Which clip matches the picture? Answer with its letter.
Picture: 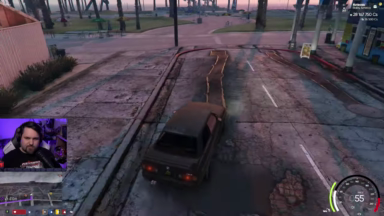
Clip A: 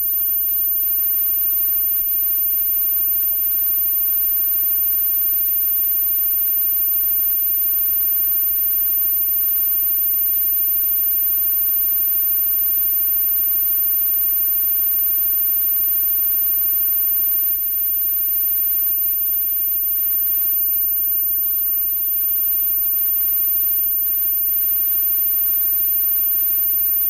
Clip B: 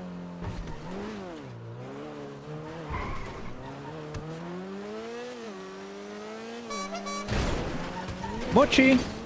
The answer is B